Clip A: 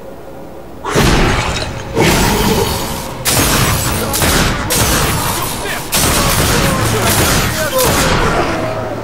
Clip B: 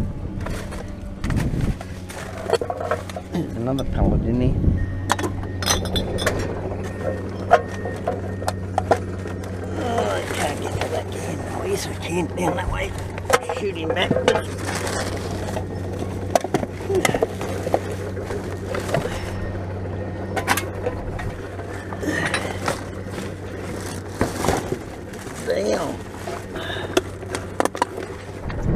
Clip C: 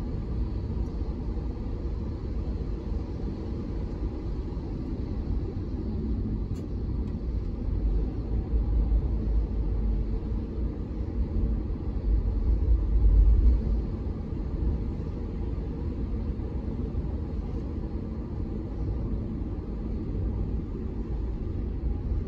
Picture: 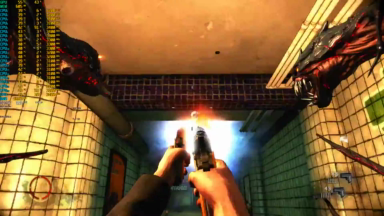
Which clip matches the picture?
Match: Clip A